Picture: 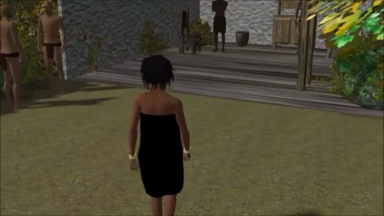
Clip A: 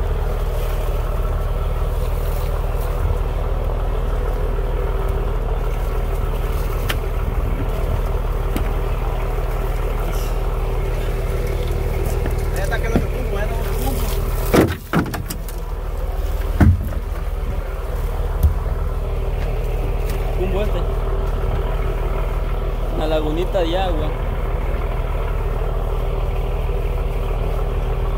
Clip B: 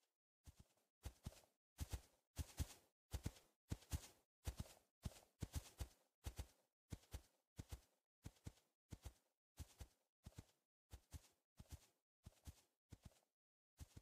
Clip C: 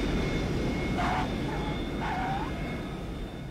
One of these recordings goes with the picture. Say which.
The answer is B